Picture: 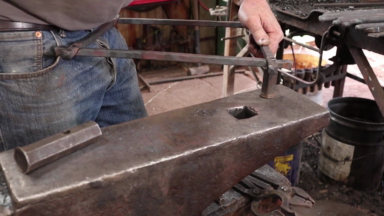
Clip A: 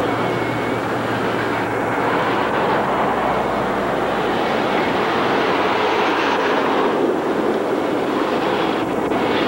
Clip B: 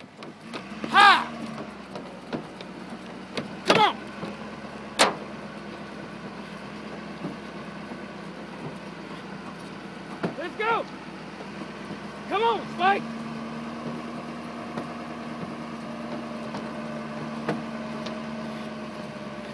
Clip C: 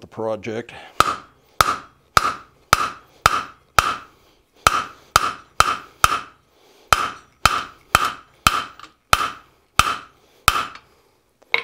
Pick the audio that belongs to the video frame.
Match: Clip C